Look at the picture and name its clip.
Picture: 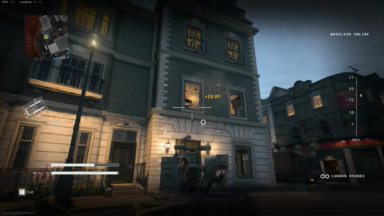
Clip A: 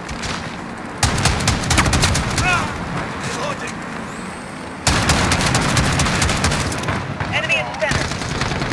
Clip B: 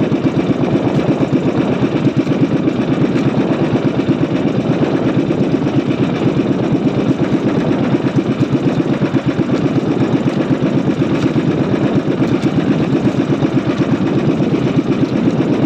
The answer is A